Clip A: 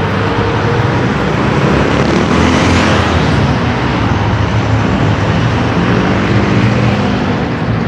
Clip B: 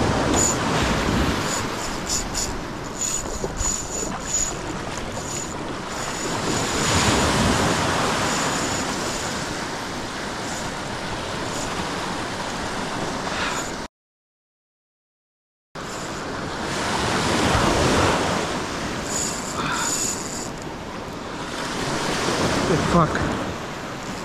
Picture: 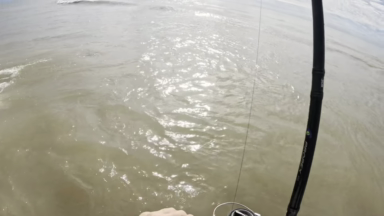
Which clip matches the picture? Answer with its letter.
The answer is B